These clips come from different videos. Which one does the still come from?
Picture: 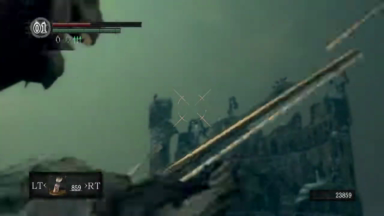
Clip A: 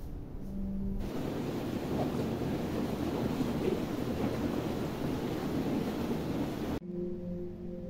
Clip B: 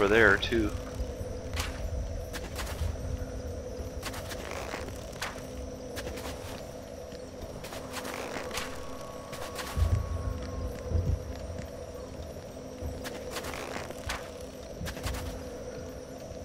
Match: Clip B